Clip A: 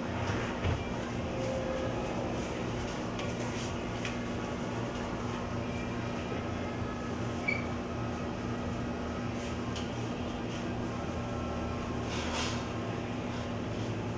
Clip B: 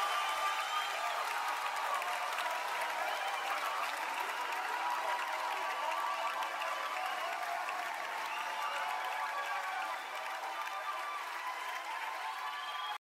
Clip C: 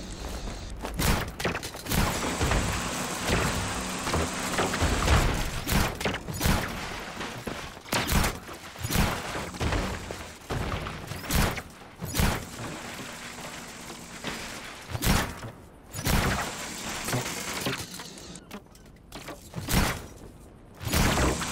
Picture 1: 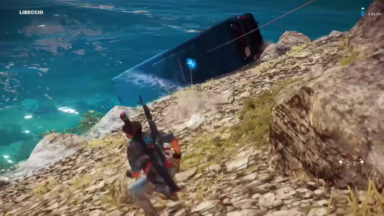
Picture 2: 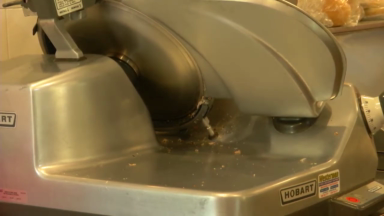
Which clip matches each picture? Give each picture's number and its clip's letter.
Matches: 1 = C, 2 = A